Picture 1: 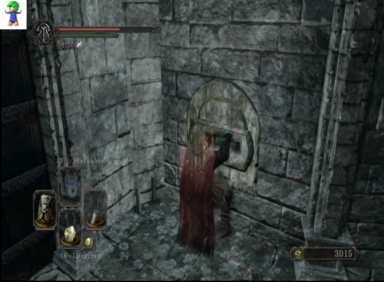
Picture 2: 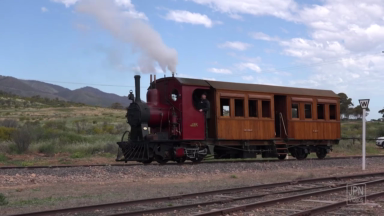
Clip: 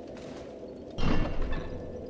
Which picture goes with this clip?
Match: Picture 1